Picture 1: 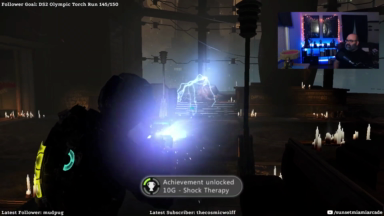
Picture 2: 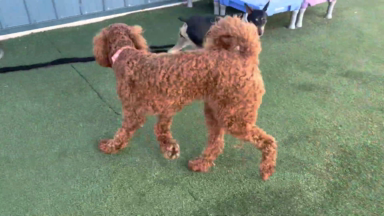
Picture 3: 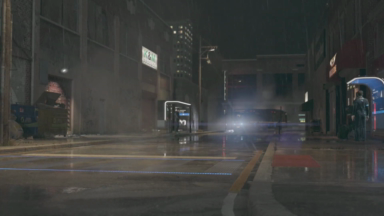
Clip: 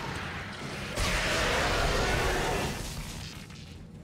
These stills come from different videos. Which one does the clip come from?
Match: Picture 1